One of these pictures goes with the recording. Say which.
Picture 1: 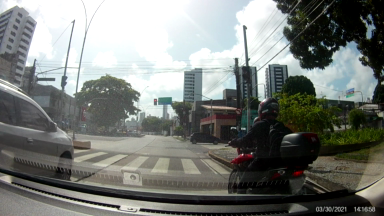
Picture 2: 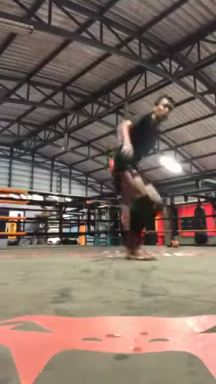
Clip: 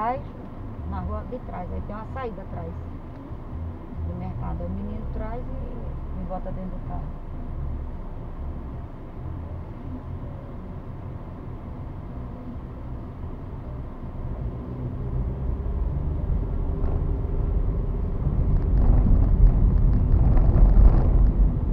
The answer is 1